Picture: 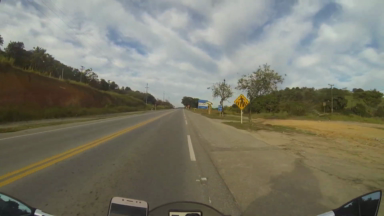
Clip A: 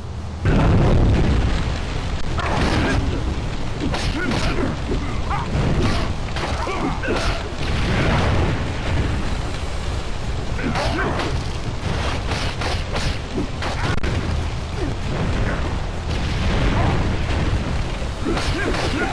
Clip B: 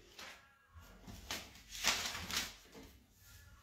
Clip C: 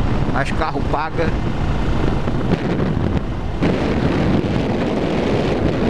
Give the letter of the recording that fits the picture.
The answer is C